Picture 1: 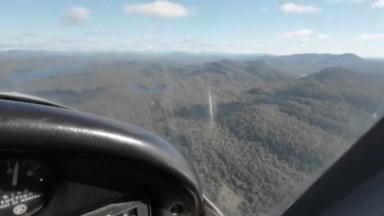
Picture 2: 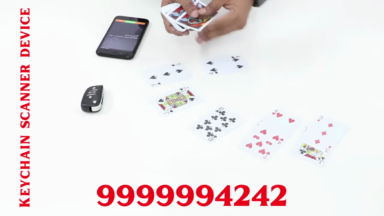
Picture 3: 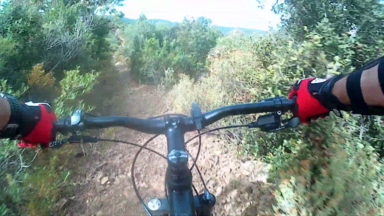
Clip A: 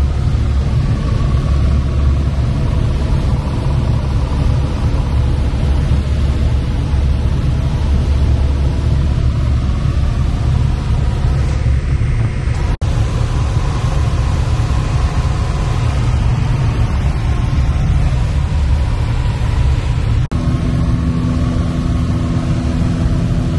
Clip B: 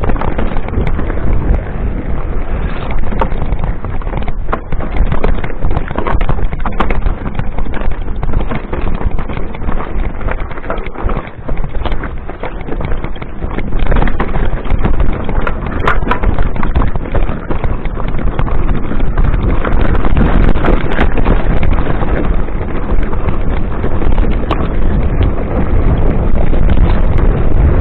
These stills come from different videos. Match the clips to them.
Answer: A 1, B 3